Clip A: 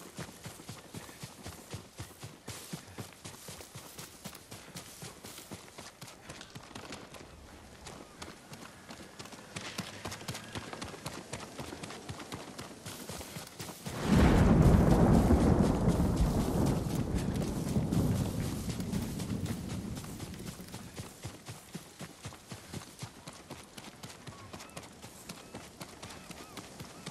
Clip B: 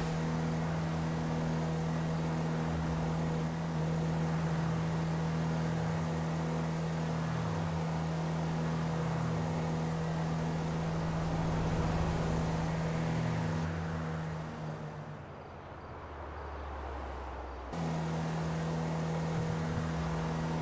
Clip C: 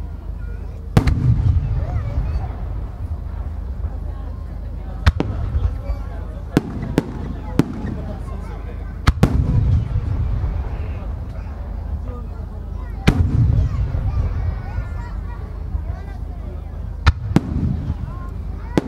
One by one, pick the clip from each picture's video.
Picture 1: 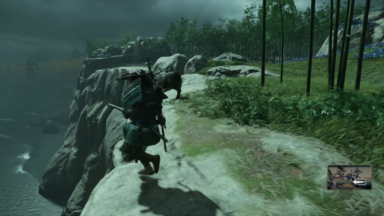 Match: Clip A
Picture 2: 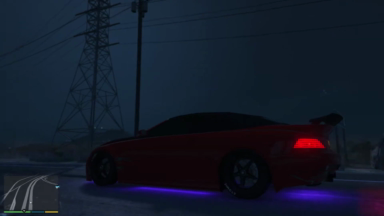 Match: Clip B